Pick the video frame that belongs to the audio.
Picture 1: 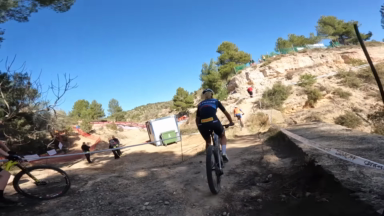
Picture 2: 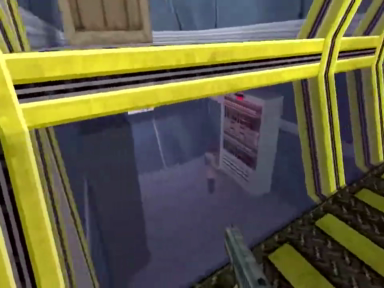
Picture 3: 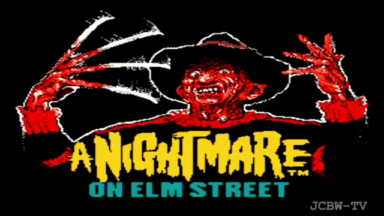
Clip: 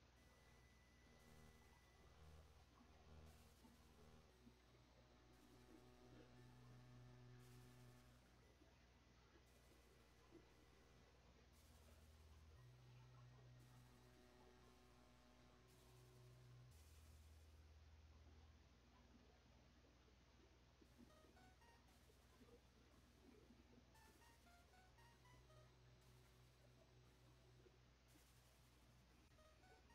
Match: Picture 3